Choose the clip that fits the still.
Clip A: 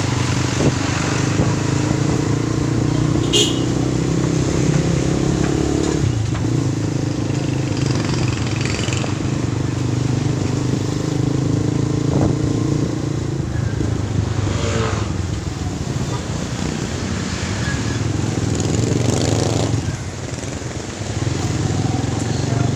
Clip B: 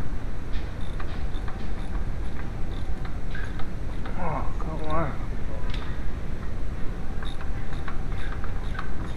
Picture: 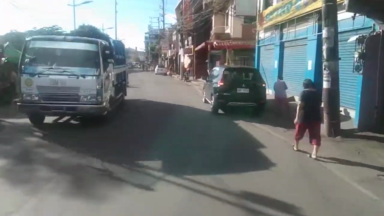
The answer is A